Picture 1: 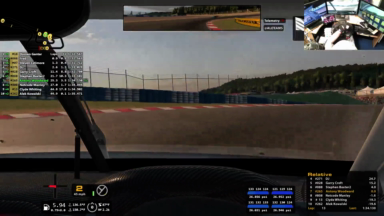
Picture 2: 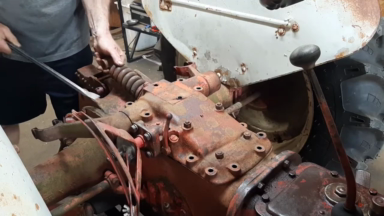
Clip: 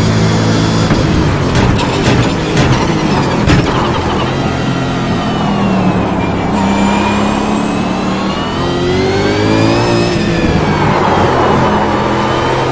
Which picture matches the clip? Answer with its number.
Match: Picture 1